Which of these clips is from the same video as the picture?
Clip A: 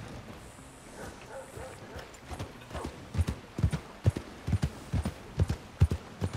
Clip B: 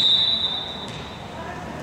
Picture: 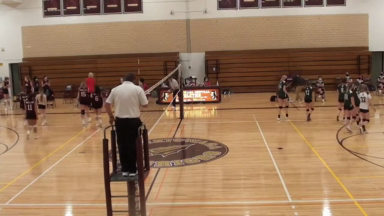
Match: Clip B